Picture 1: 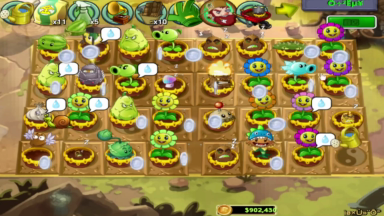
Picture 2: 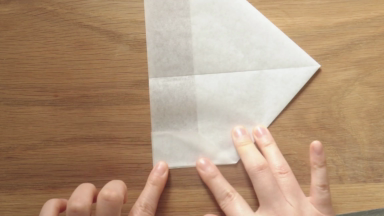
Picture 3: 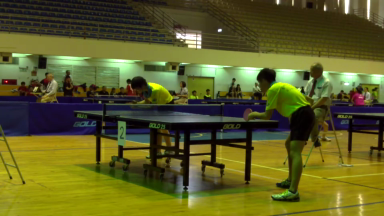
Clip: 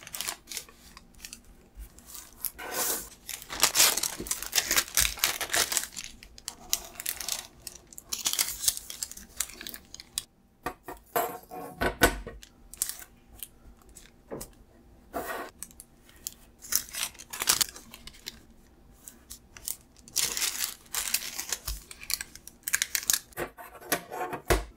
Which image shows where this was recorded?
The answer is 2